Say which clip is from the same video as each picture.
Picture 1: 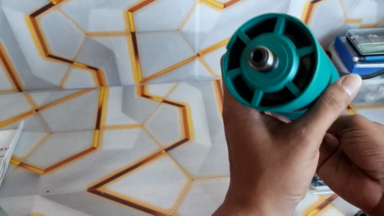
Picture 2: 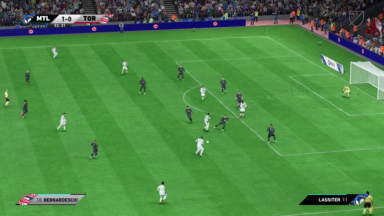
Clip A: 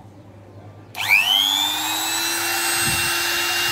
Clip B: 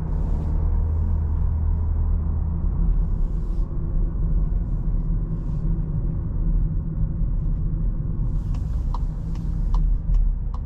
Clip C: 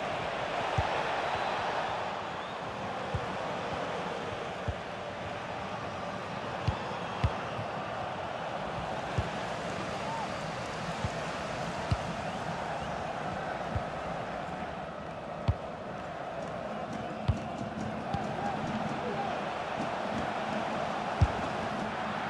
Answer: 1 A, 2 C